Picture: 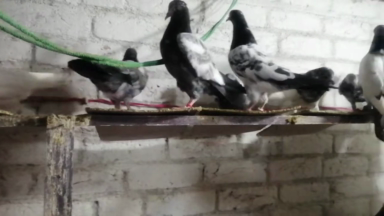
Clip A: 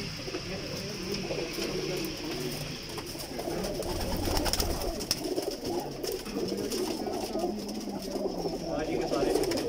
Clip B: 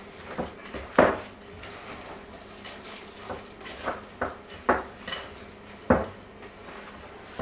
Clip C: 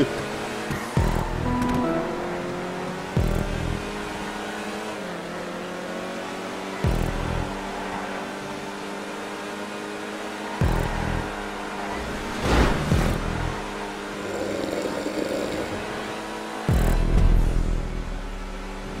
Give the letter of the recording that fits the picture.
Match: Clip A